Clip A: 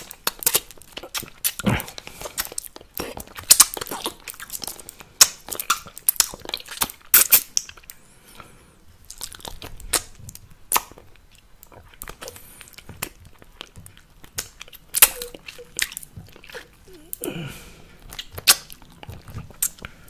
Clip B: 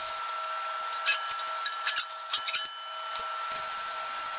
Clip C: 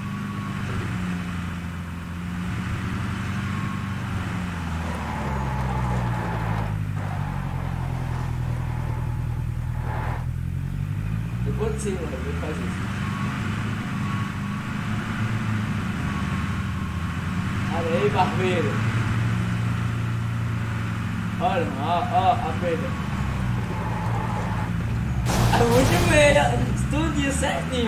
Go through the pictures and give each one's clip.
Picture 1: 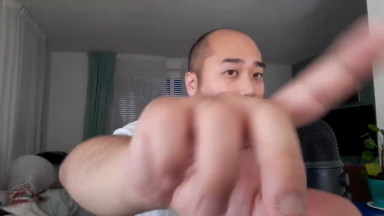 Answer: A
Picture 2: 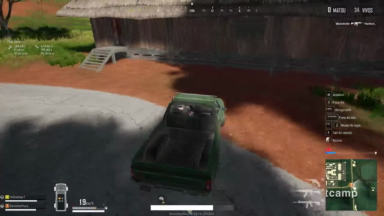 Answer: C